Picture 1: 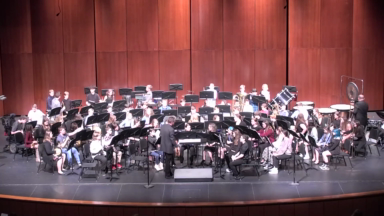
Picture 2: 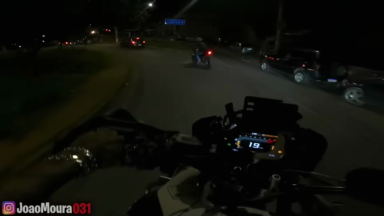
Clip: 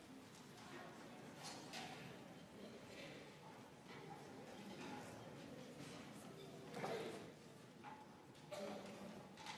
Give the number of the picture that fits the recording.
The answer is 1